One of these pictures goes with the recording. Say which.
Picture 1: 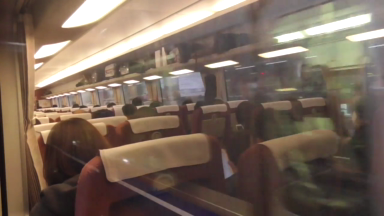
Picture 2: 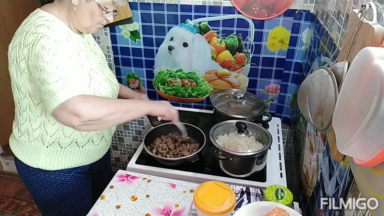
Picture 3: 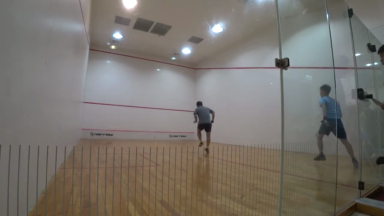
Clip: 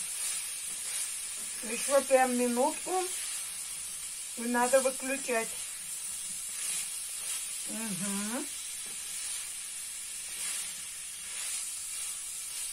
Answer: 2